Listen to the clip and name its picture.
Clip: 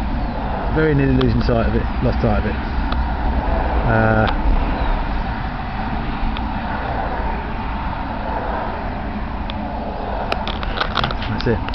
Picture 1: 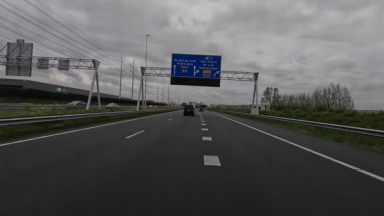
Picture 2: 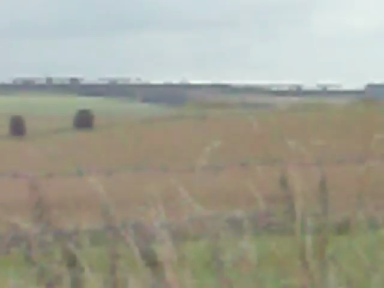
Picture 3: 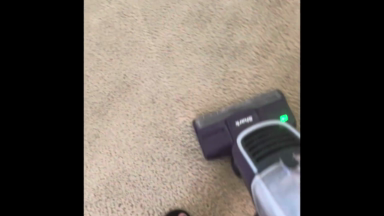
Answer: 2